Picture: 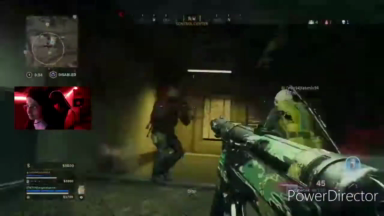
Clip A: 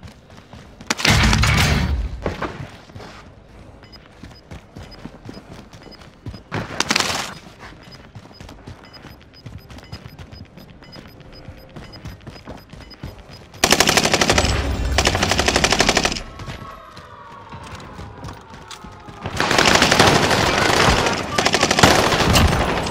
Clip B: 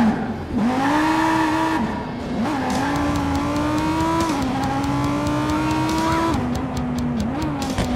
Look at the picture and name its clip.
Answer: A